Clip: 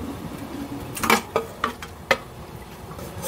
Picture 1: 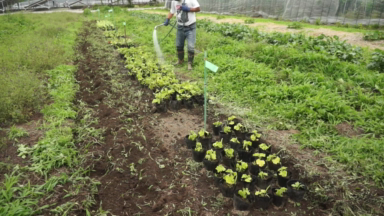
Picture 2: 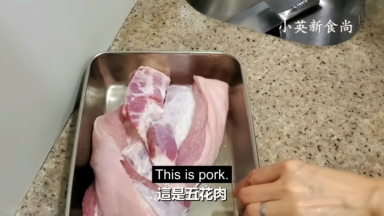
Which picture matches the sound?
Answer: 2